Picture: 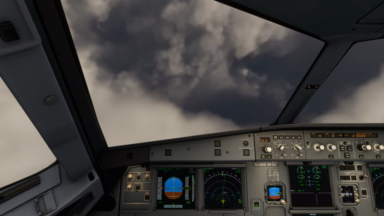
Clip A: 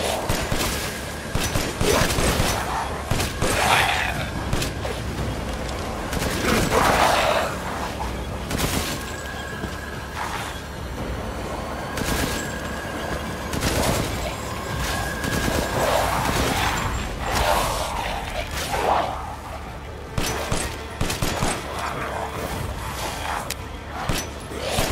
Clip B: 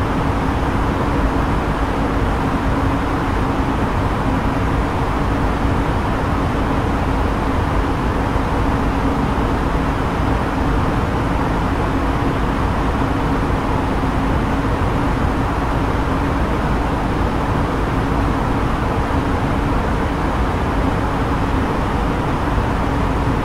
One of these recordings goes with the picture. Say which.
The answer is B